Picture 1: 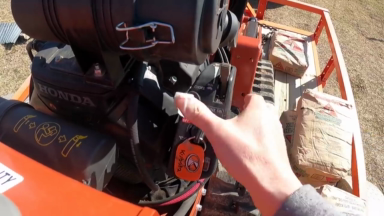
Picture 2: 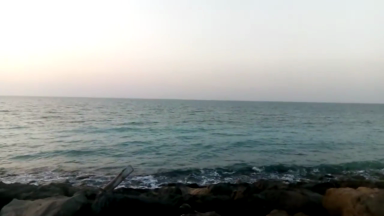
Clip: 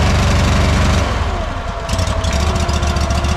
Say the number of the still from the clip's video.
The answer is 1